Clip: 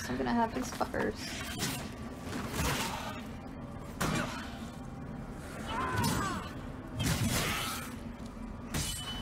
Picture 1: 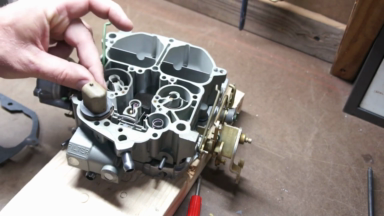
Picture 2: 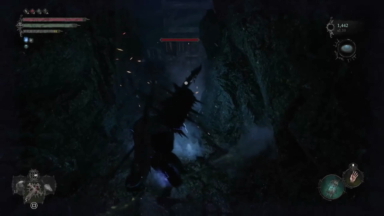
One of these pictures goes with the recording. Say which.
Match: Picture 2